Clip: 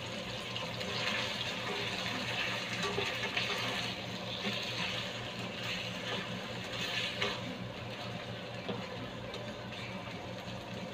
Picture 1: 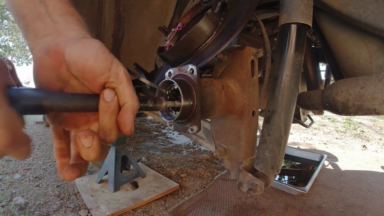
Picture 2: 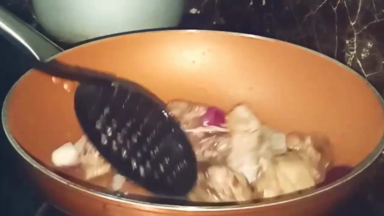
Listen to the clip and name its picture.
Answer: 2